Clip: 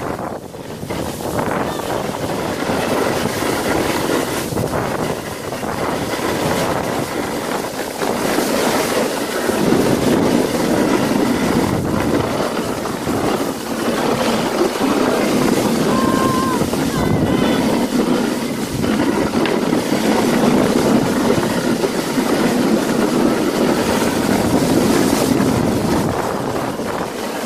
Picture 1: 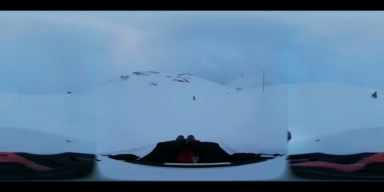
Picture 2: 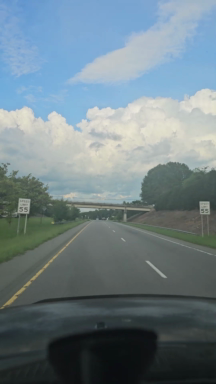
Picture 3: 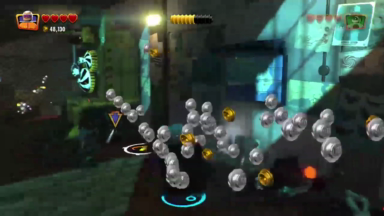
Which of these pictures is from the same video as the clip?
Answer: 1